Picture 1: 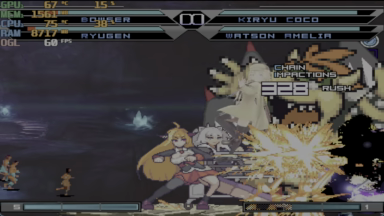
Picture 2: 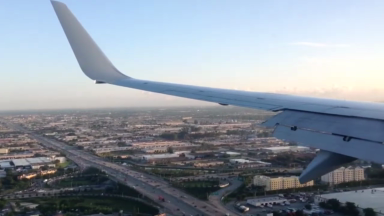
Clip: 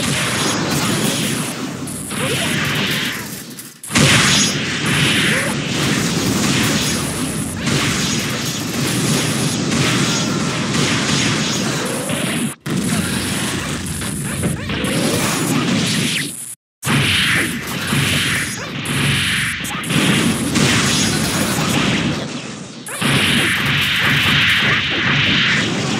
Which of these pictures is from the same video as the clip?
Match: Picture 1